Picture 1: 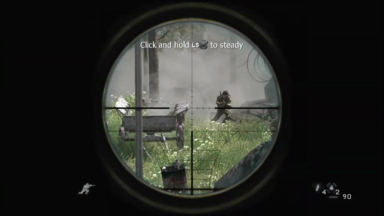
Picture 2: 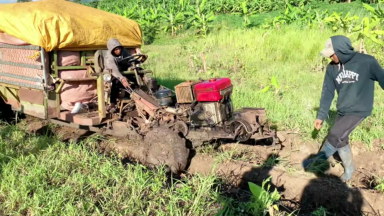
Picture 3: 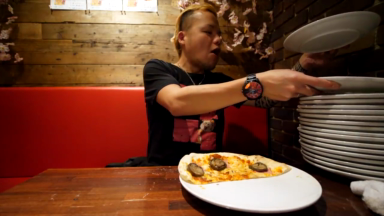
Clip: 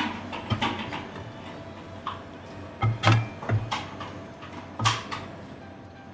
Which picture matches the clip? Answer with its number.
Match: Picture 3